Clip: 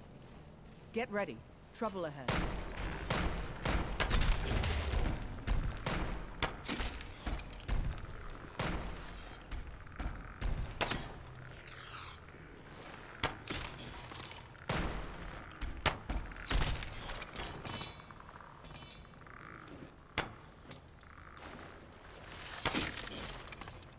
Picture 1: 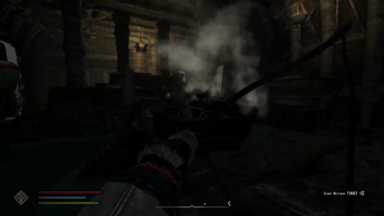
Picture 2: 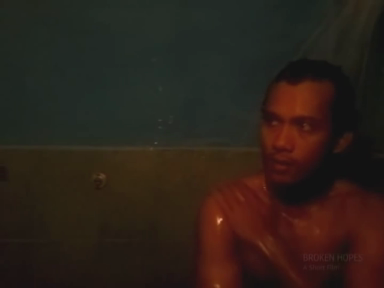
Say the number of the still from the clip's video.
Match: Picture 1